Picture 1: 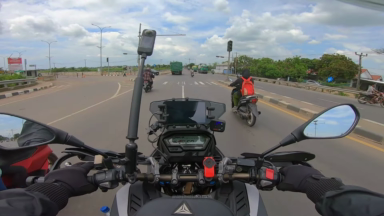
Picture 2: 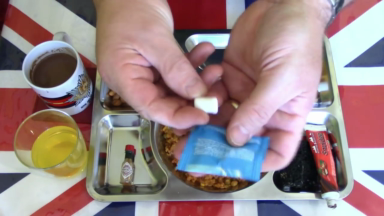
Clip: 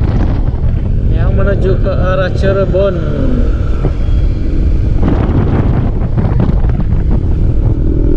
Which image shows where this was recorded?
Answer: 1